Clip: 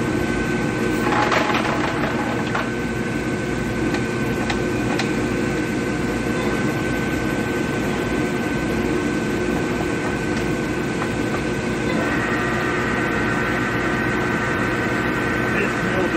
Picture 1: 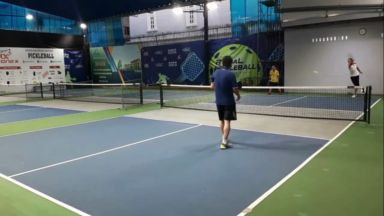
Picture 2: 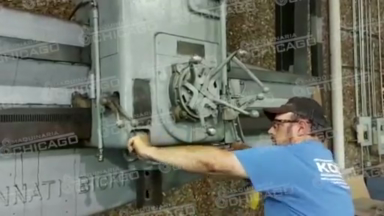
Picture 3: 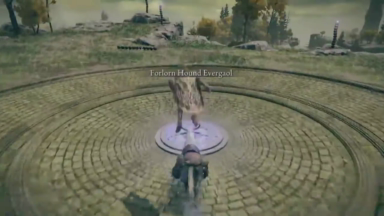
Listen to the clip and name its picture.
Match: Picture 2